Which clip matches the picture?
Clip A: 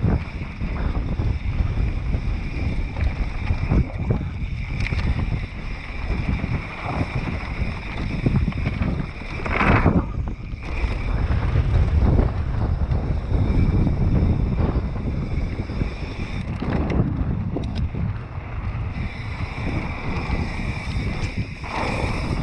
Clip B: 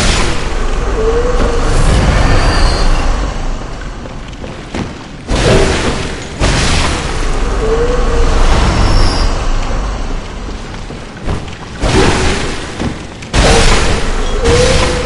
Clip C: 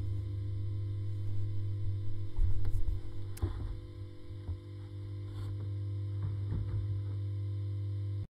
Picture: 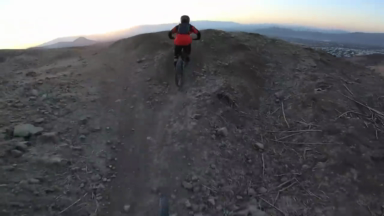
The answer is A